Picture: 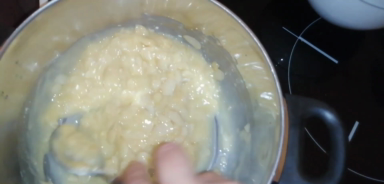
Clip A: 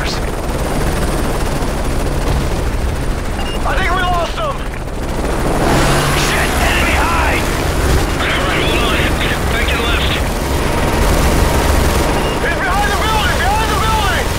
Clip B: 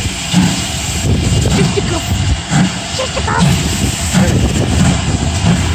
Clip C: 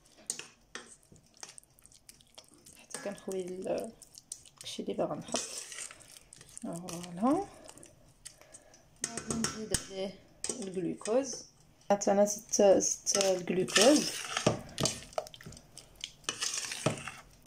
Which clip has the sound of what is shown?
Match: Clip C